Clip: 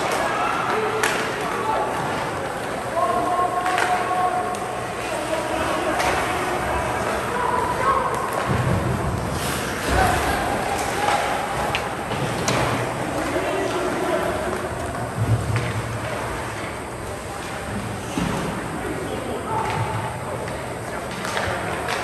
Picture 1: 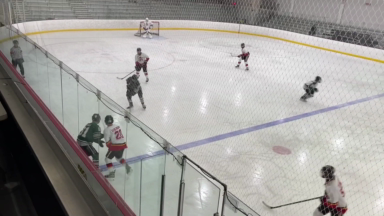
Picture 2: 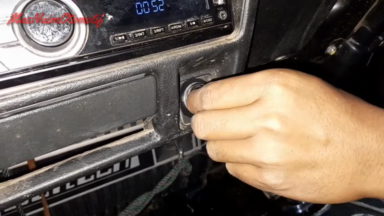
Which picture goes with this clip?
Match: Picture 1